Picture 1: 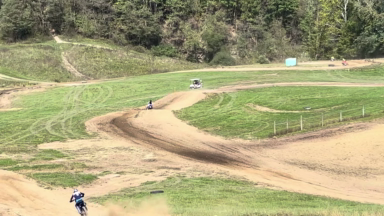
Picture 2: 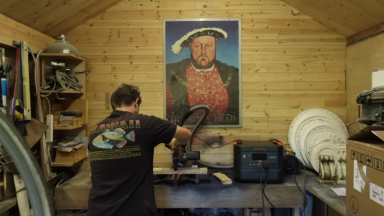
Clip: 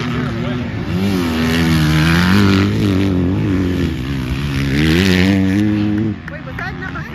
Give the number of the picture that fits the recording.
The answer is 1